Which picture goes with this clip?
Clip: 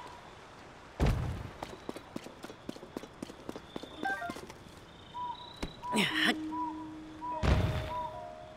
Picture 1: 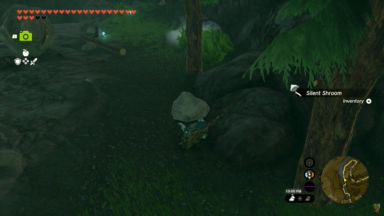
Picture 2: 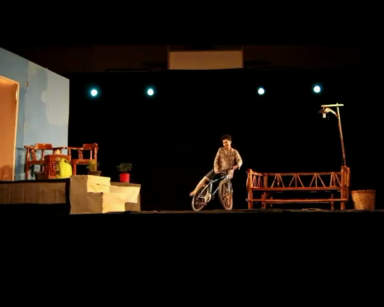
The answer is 1